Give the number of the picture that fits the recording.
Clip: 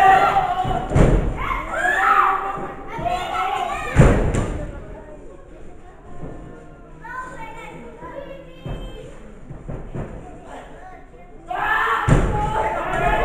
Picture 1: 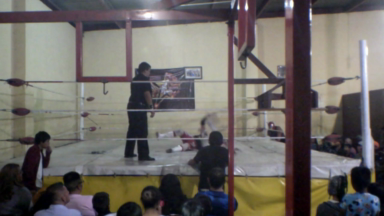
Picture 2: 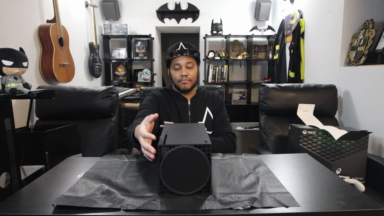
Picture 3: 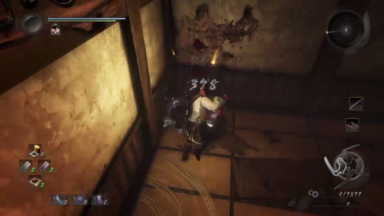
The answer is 1